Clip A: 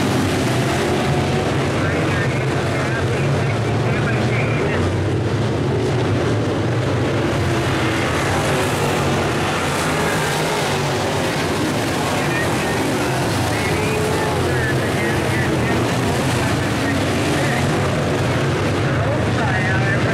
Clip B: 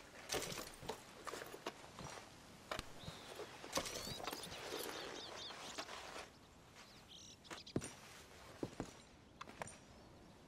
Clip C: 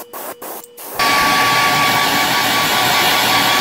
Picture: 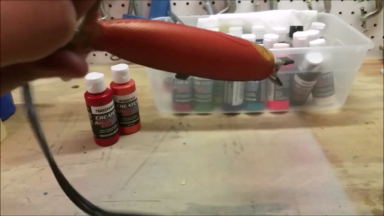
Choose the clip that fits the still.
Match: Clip C